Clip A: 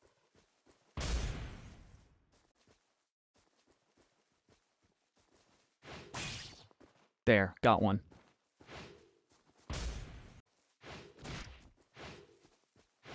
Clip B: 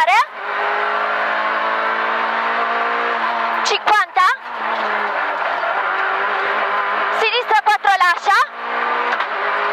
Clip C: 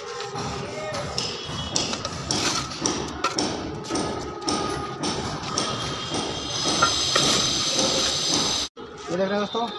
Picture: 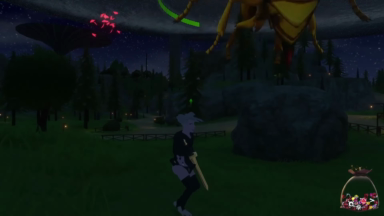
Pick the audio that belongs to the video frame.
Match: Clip A